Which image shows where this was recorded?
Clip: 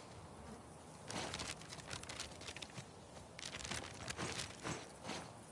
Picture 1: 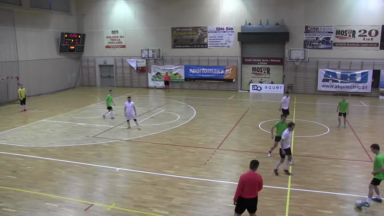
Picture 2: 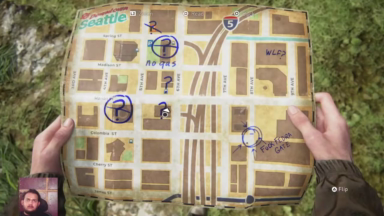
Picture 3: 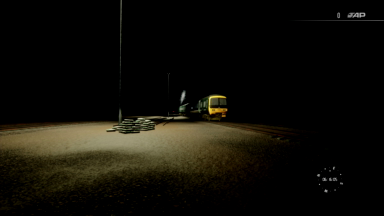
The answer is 2